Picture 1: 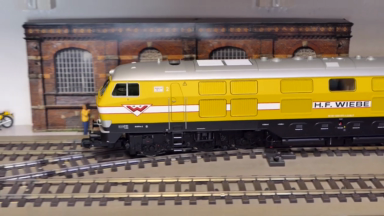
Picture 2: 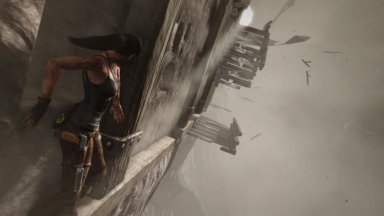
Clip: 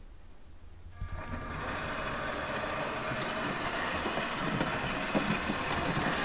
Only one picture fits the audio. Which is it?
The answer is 1